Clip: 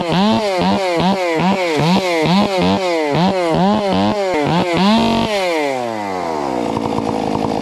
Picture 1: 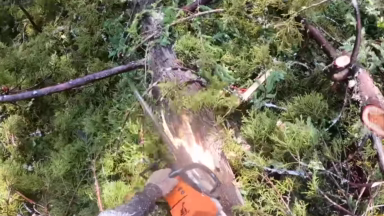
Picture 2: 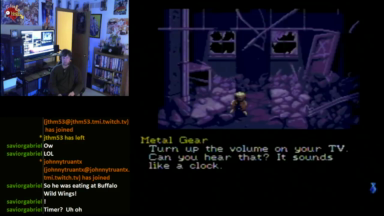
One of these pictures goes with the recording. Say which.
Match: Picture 1